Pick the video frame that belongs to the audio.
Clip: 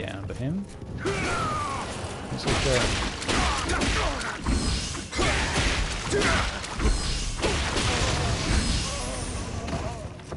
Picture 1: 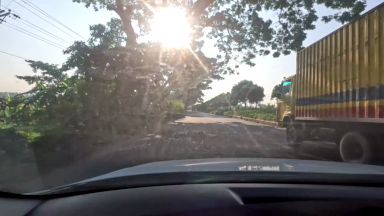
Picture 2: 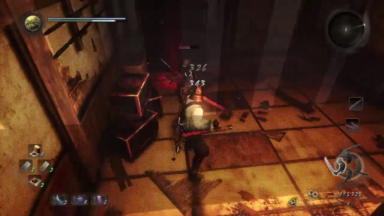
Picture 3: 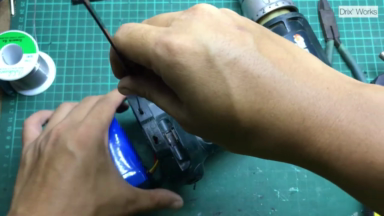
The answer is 2